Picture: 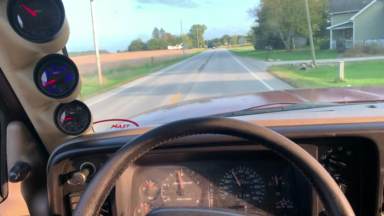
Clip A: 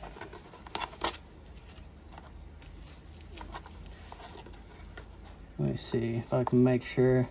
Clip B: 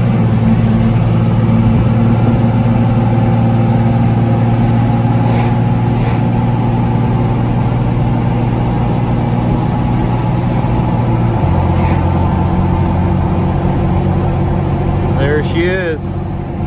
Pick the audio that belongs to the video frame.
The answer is B